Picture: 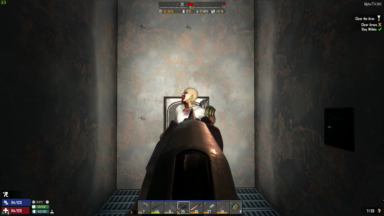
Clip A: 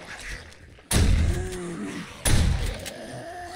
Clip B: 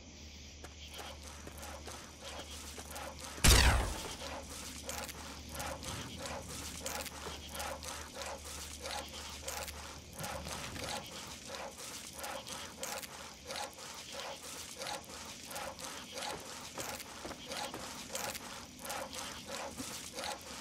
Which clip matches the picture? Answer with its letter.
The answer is A